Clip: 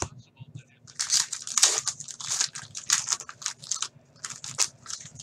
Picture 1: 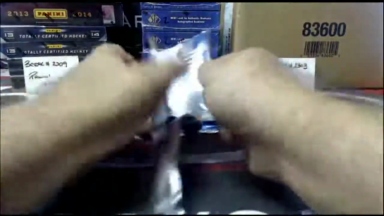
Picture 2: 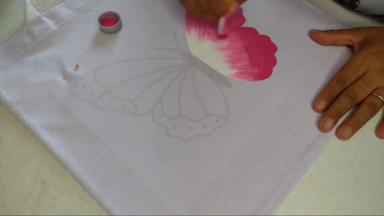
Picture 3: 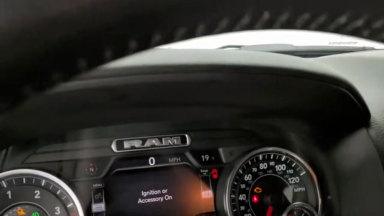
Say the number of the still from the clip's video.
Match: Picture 1